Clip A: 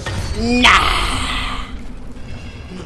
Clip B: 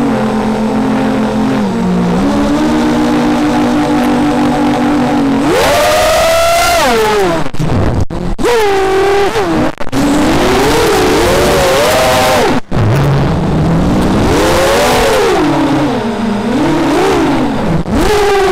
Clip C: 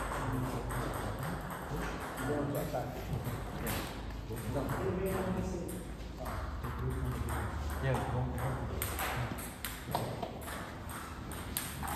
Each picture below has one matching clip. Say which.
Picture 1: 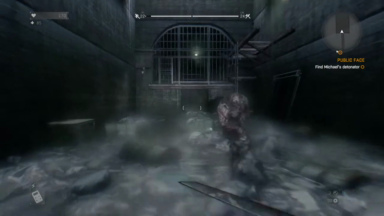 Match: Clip A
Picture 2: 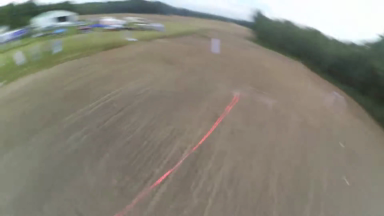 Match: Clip B